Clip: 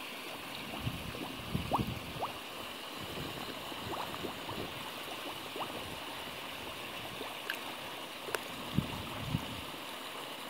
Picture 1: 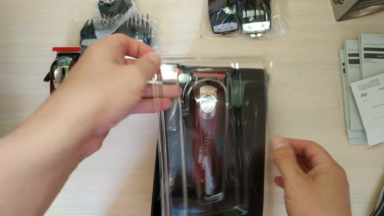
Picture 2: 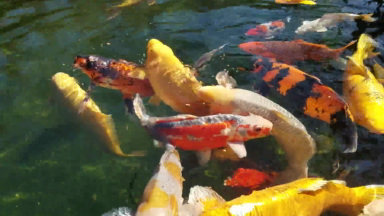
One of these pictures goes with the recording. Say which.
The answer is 2